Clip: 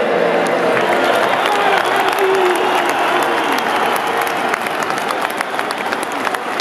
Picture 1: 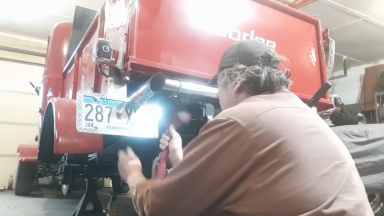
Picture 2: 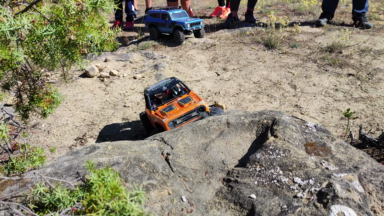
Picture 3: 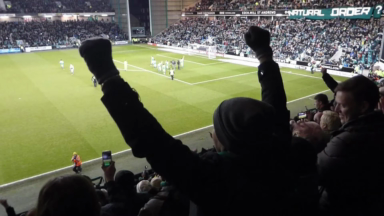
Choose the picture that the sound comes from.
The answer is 3